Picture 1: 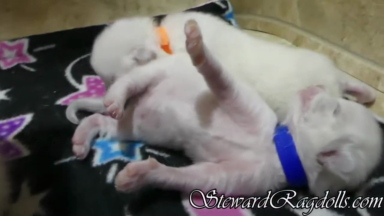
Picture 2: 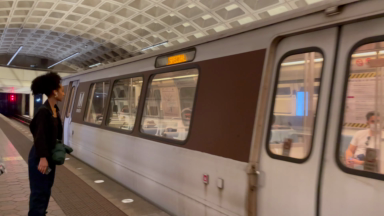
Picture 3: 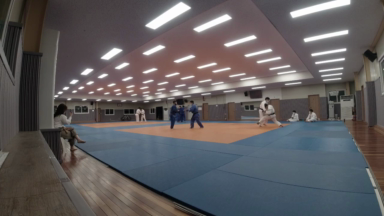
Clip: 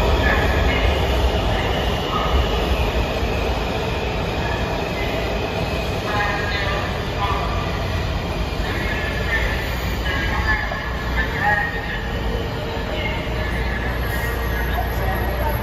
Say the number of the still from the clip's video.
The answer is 2